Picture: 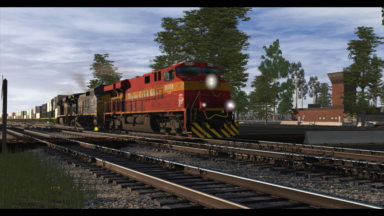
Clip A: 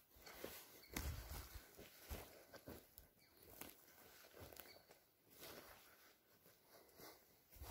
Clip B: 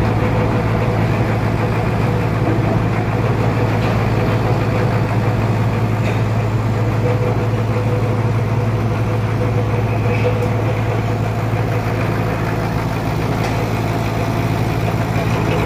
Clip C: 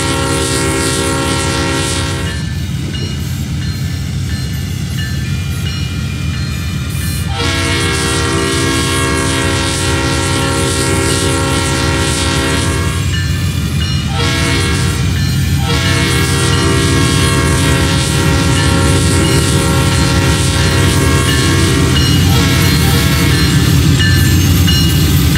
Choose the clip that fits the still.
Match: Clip C